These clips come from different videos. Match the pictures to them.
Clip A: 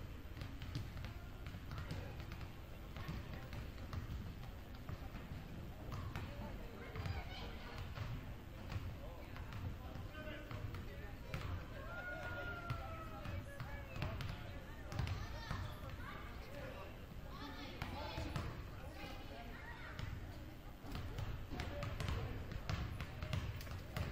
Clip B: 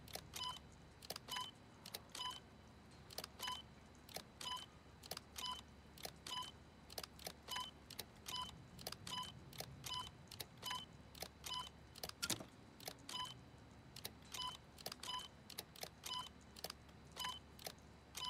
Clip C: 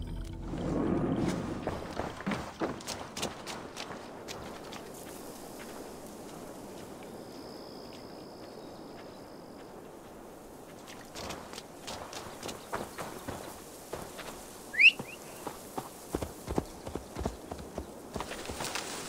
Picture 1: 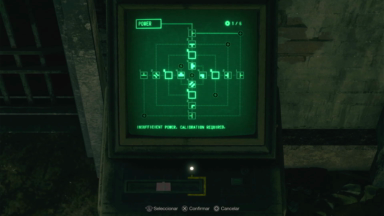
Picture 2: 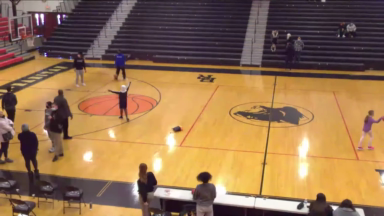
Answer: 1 B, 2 A